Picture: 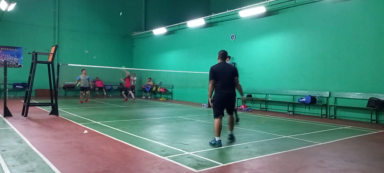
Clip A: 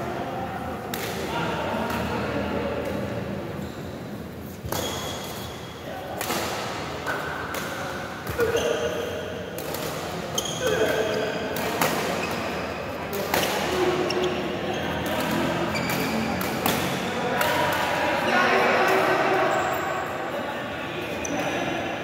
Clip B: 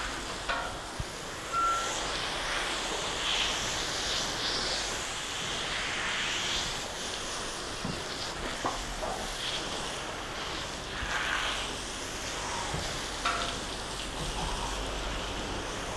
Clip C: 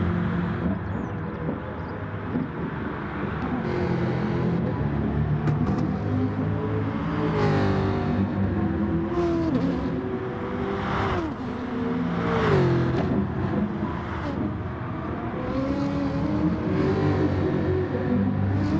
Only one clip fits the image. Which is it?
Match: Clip A